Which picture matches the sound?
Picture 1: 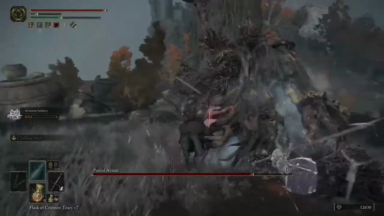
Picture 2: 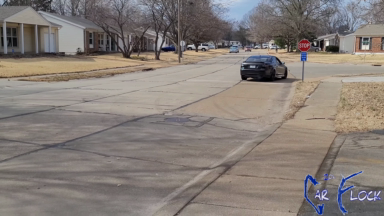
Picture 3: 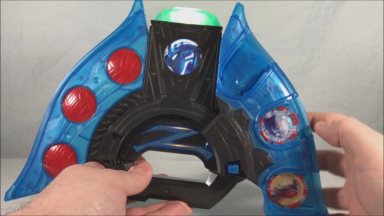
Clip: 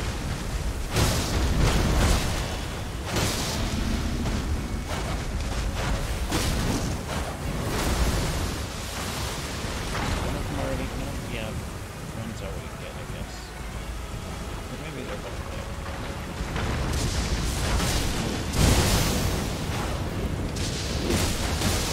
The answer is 1